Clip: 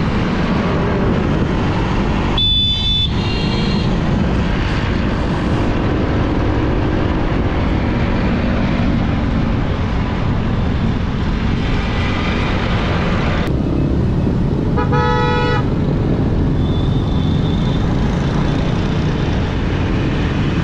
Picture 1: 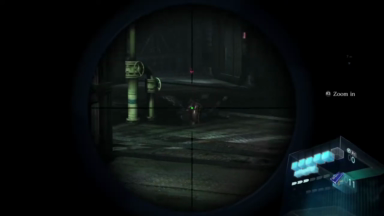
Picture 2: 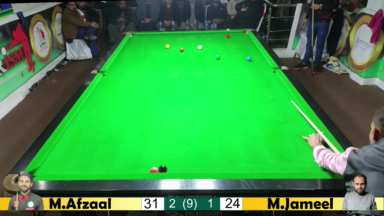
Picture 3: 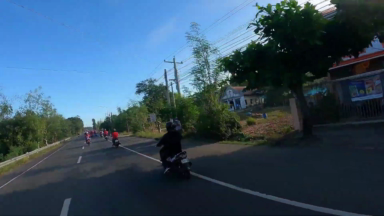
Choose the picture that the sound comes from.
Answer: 3